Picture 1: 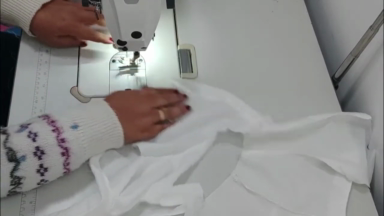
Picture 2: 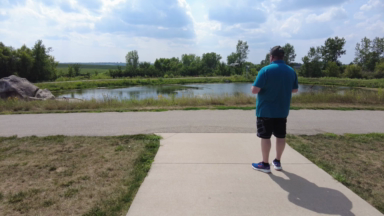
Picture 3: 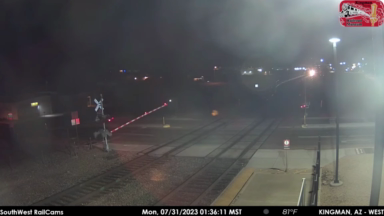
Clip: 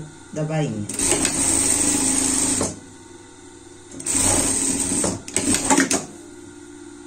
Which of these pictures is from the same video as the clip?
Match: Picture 1